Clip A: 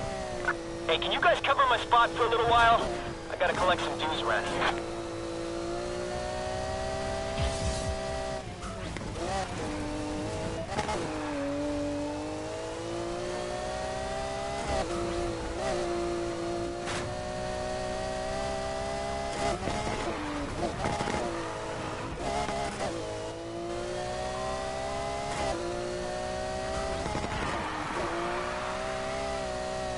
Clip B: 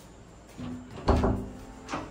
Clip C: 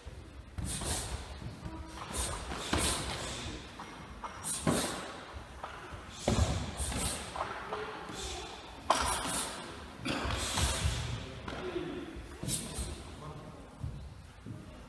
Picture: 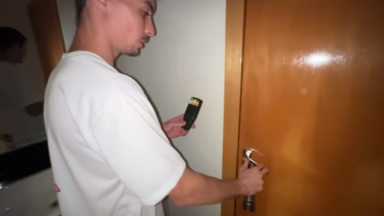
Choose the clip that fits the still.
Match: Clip B